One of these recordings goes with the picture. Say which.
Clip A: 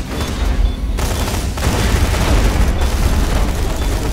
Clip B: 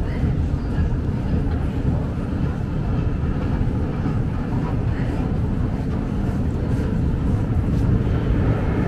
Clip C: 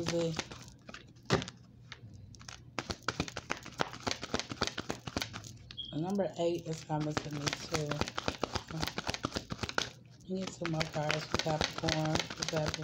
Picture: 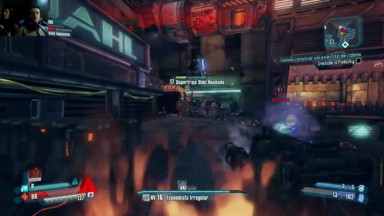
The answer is A